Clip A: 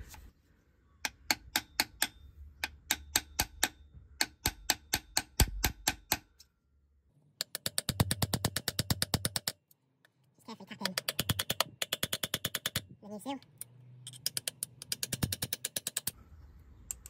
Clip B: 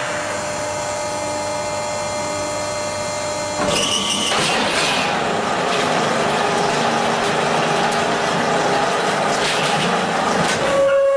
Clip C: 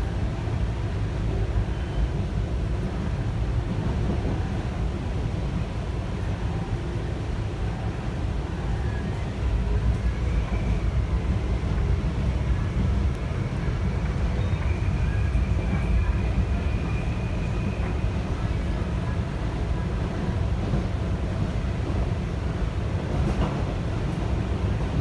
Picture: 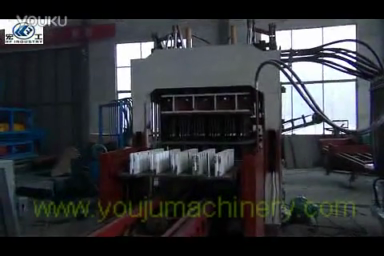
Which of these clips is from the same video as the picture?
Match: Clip B